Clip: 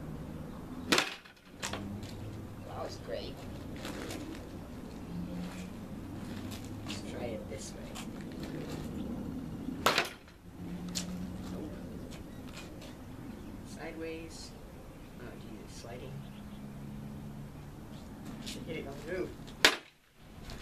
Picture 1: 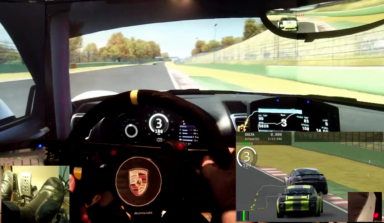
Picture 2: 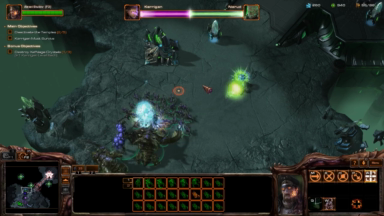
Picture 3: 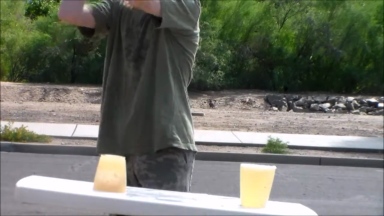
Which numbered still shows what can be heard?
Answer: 3